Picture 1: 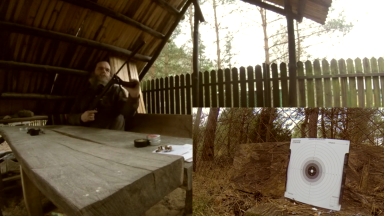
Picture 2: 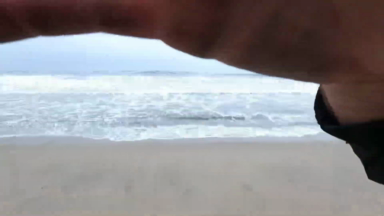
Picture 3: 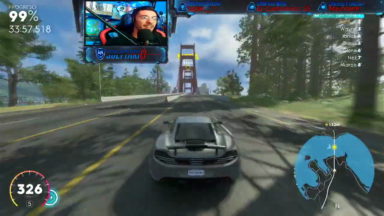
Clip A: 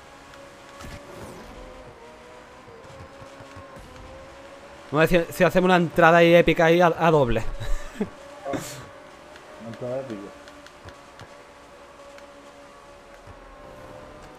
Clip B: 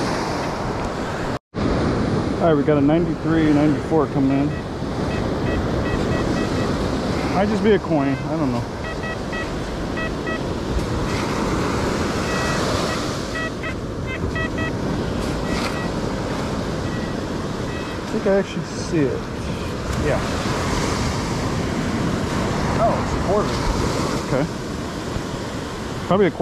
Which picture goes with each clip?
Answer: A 3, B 2